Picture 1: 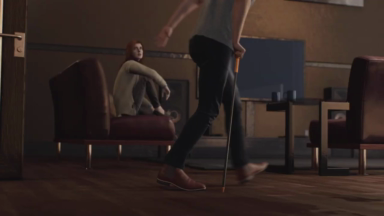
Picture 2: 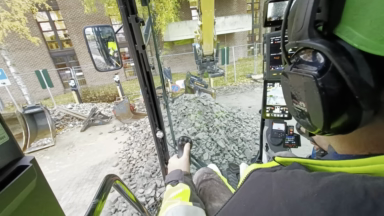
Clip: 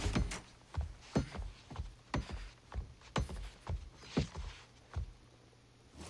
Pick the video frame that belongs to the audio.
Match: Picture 1